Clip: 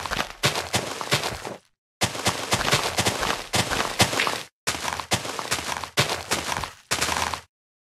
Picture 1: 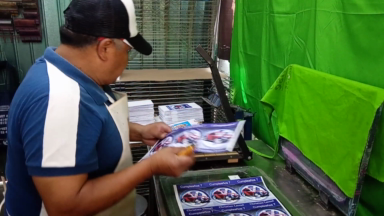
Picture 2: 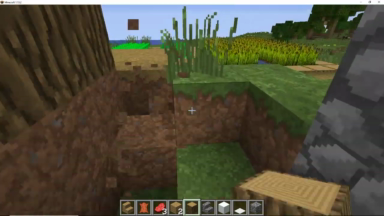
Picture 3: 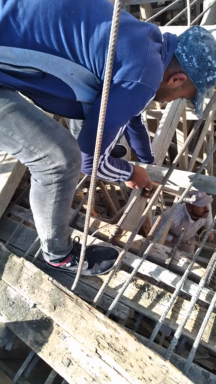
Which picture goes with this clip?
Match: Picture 2